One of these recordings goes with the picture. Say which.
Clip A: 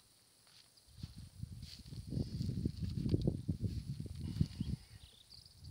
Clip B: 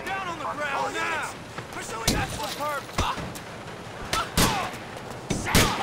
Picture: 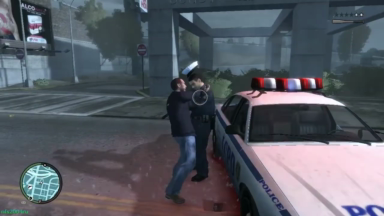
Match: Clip B